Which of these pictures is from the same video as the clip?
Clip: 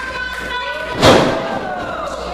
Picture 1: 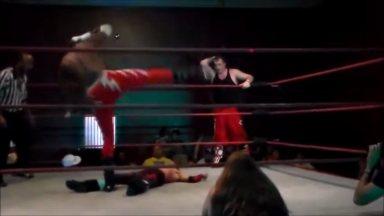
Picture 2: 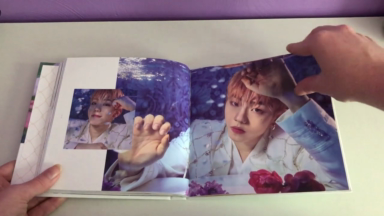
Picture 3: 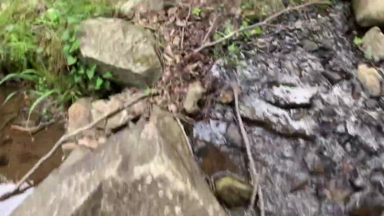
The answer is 1